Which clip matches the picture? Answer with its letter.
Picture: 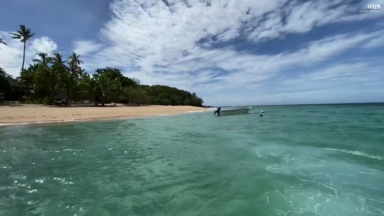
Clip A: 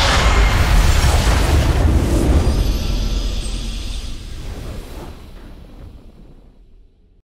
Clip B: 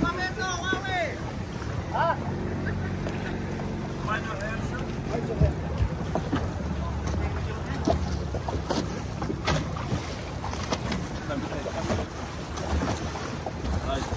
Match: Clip B